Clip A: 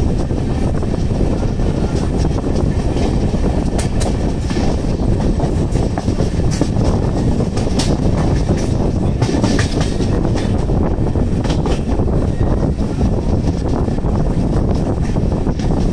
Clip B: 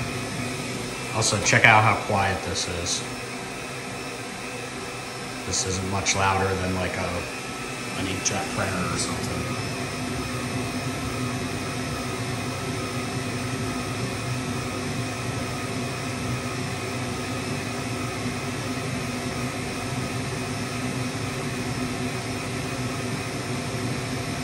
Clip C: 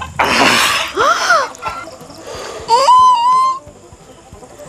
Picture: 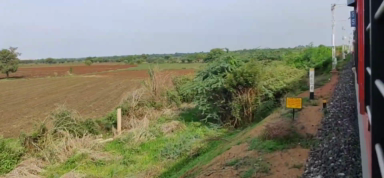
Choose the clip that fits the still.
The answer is A